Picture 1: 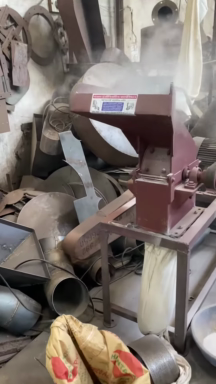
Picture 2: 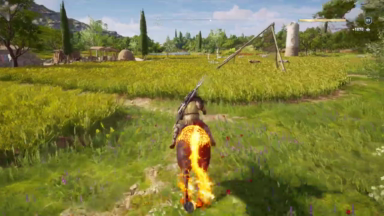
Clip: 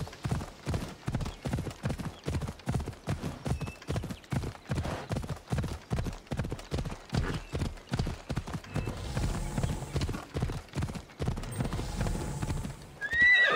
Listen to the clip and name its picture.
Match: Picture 2